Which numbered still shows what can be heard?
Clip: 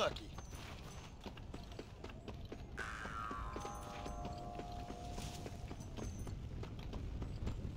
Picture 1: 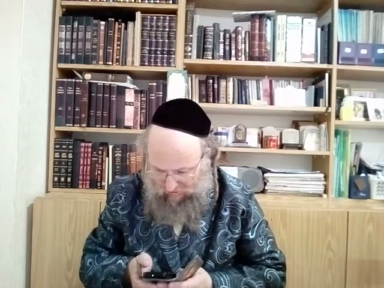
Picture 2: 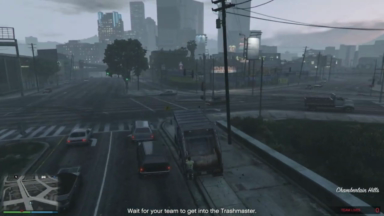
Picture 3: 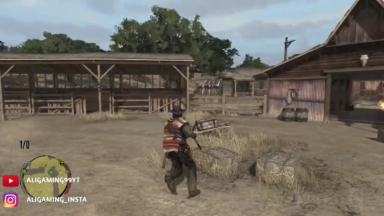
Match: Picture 3